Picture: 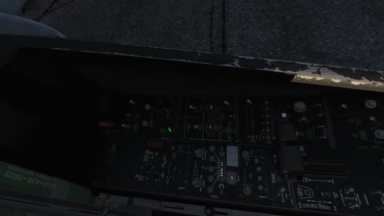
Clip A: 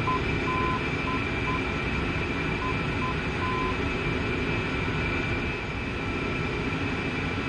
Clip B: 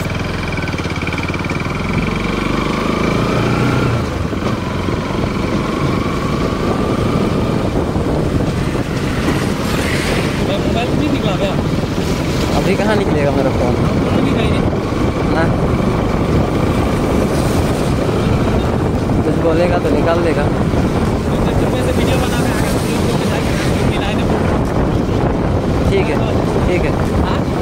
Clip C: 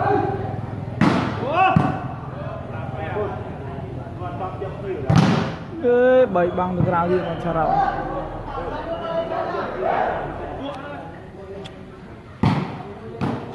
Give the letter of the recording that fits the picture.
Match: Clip A